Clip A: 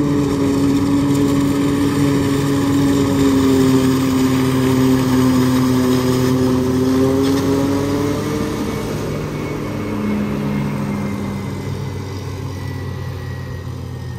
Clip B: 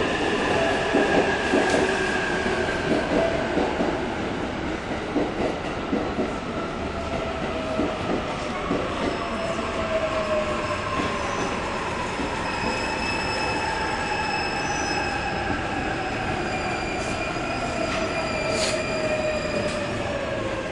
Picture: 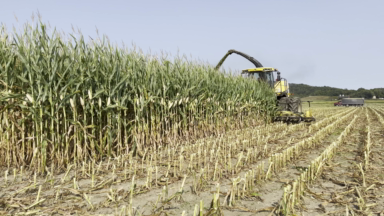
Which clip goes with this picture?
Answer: A